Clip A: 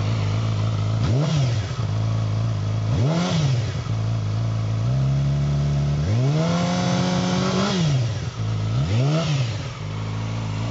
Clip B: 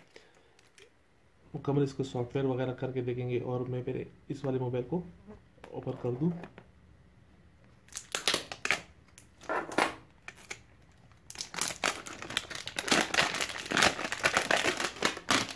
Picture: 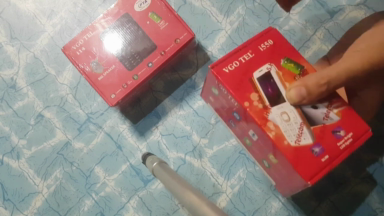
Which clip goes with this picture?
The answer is B